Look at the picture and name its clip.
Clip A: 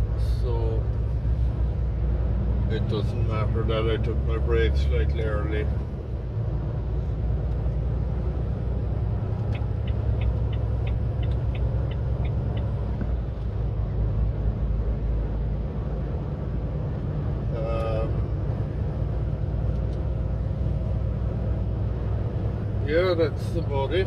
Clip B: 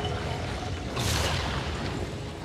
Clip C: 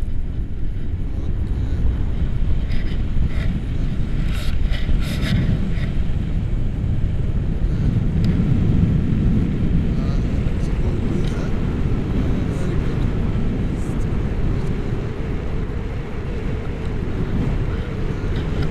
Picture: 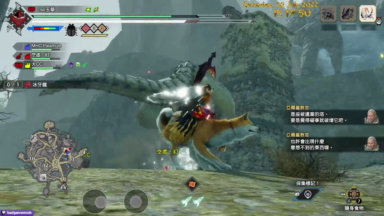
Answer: B